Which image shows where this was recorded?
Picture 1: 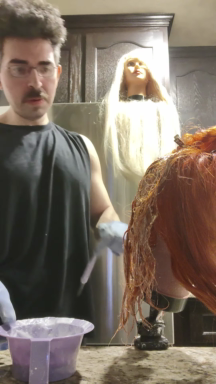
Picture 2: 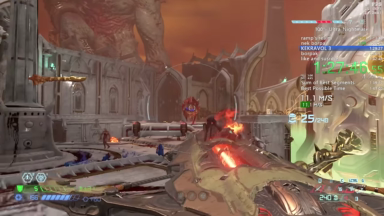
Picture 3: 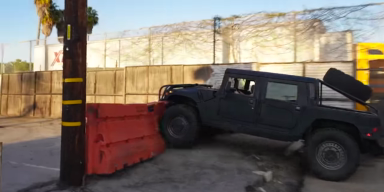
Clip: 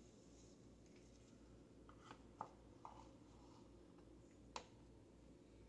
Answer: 1